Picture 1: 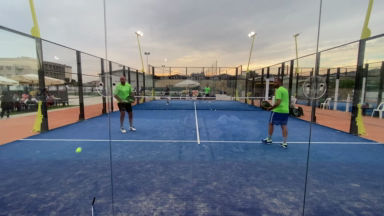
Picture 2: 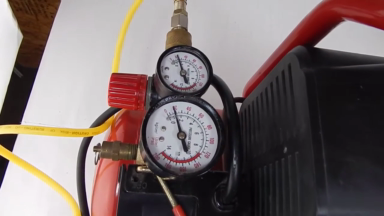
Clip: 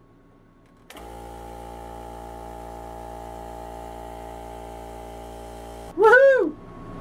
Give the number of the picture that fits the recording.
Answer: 2